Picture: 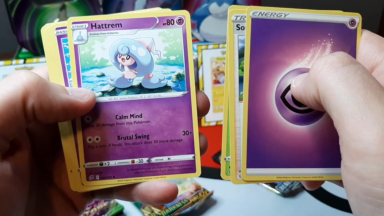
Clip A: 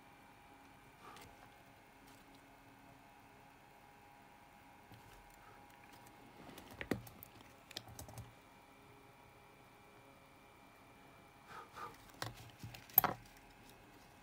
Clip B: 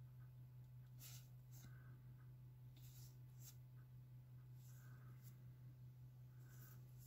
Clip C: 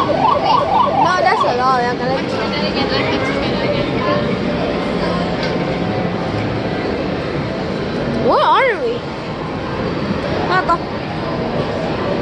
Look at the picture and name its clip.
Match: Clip B